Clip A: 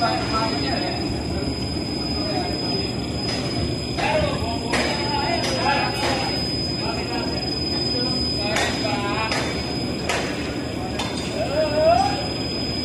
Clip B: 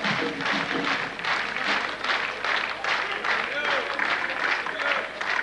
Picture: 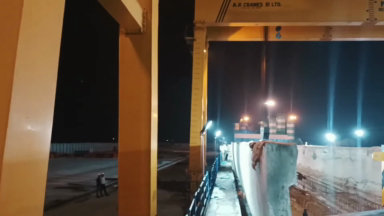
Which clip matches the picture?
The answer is A